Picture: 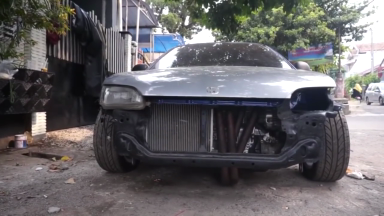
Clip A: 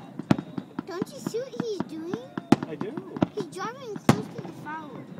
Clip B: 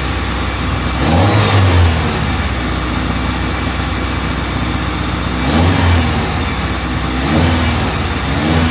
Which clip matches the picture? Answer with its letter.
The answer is B